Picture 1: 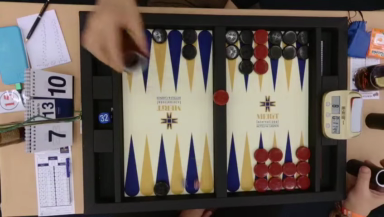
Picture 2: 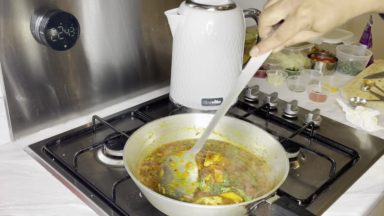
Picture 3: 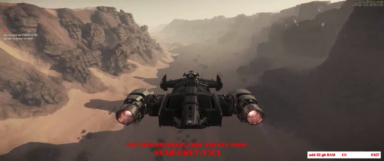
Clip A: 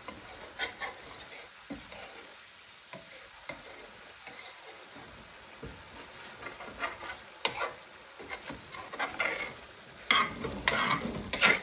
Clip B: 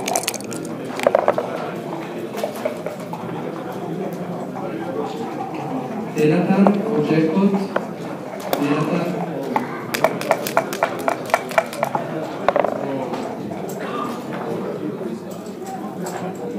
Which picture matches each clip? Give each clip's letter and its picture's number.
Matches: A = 2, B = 1